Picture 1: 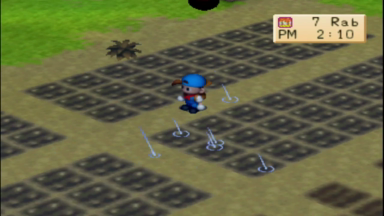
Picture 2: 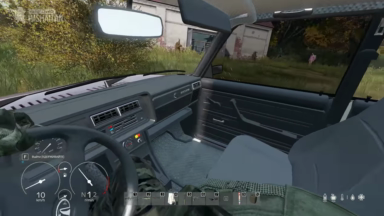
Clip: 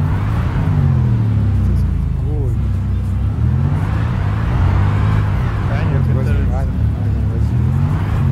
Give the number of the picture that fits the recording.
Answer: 2